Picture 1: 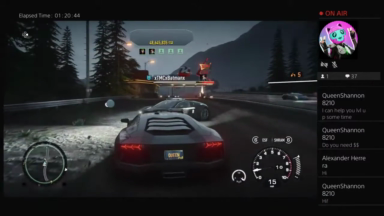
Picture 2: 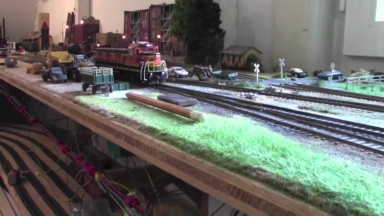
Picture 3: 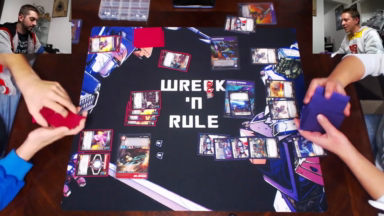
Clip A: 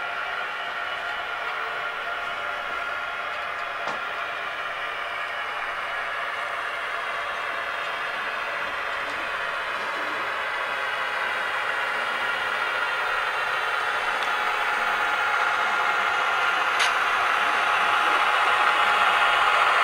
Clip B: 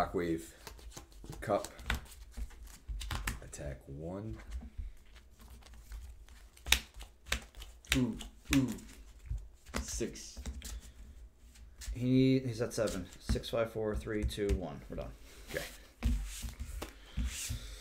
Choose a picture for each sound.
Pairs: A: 2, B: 3